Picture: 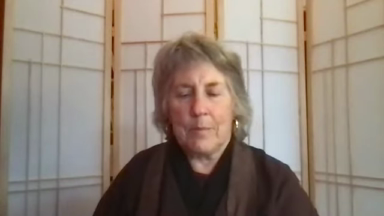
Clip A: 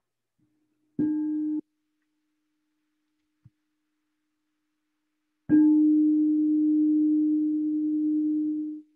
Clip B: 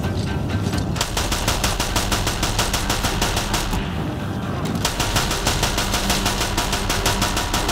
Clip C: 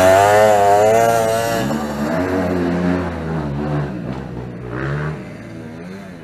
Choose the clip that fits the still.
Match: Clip A